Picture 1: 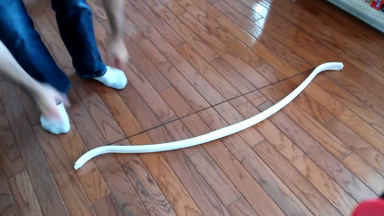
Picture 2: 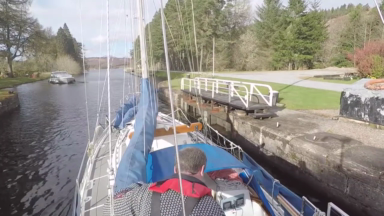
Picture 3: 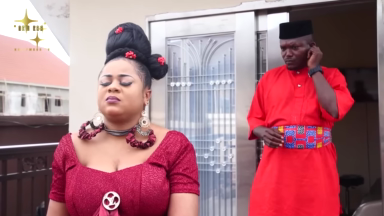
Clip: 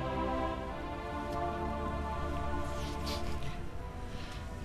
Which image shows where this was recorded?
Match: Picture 3